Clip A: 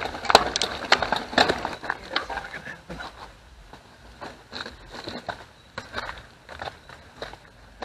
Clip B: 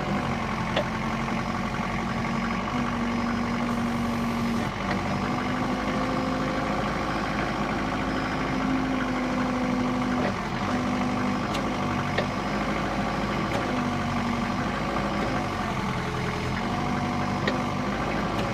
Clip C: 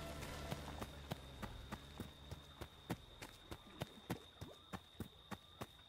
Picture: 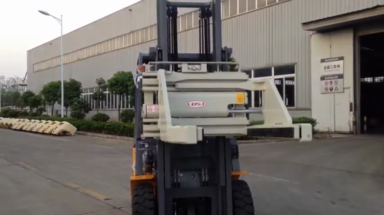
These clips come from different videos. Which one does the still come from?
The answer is B